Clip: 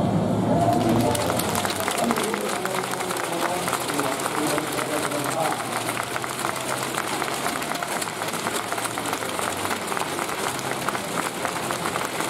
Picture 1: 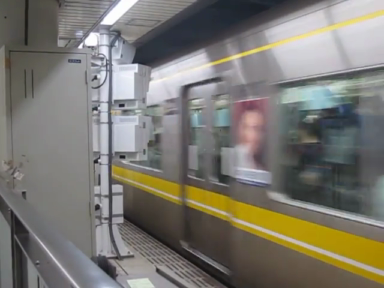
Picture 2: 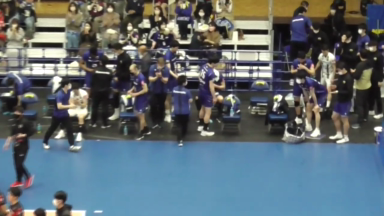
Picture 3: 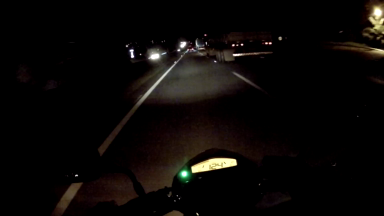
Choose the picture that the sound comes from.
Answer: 2